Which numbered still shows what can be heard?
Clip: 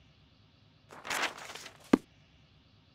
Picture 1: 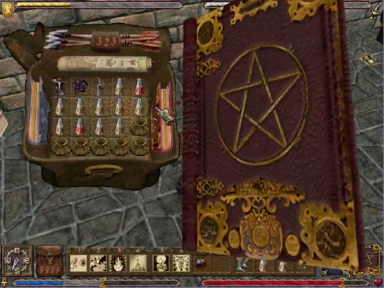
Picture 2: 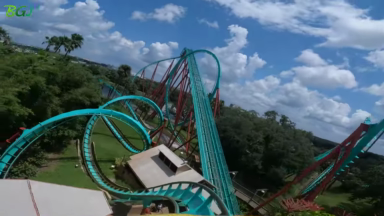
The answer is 1